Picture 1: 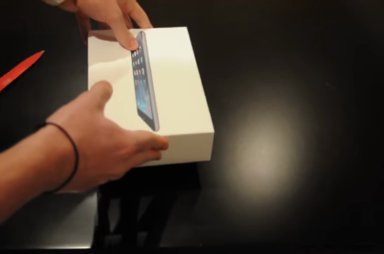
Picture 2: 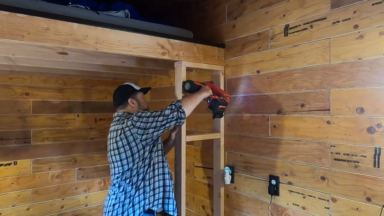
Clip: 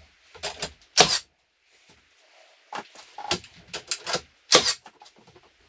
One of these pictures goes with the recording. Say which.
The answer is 2